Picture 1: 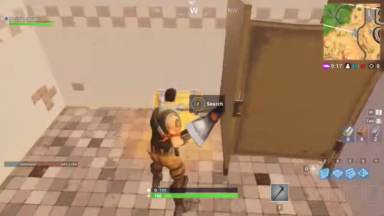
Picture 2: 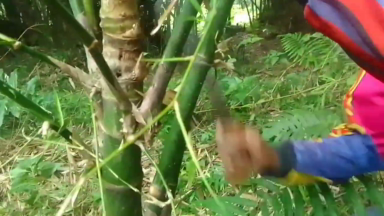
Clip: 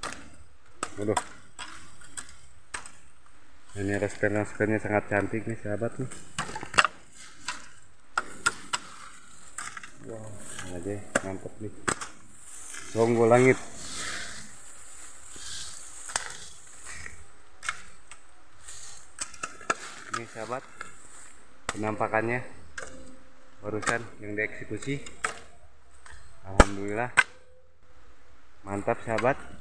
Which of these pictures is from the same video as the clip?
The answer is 2